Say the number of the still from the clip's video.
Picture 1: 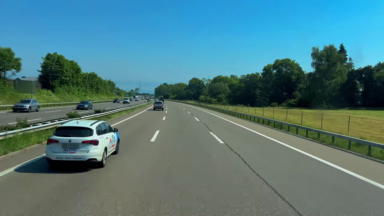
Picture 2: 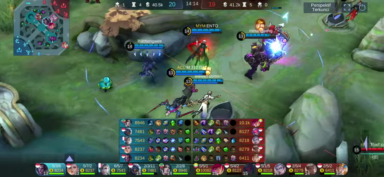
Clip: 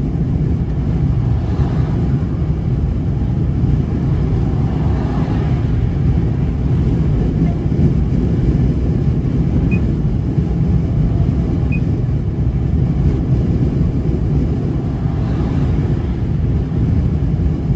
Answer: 1